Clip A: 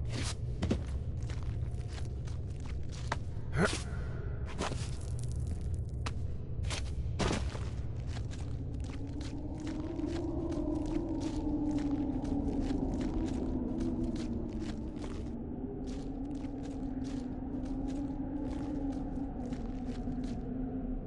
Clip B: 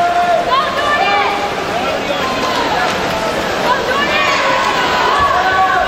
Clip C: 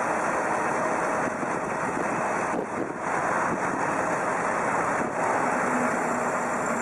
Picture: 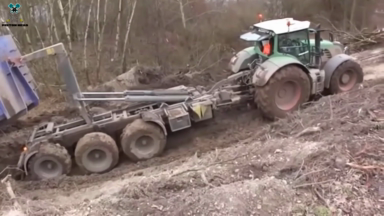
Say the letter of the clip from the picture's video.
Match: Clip C